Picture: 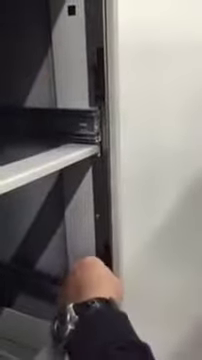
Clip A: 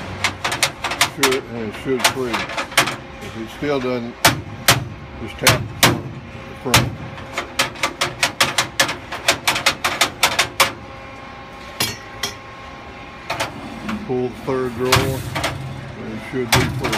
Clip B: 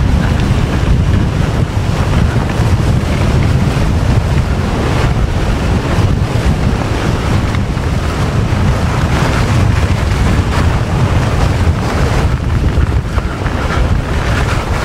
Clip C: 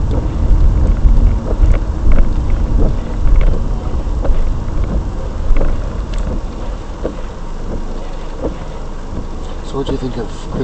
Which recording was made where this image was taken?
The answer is A